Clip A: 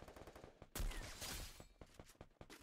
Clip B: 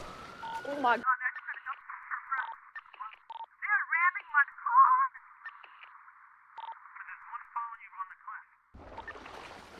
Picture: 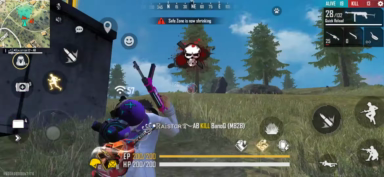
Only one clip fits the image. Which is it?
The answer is A